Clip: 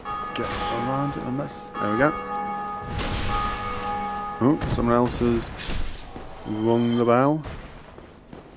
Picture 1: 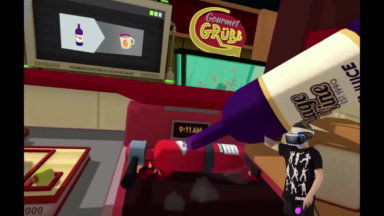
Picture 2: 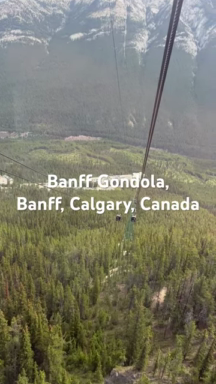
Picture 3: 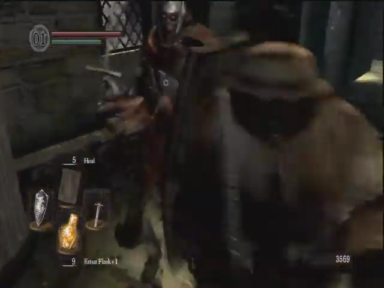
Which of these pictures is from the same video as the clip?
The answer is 3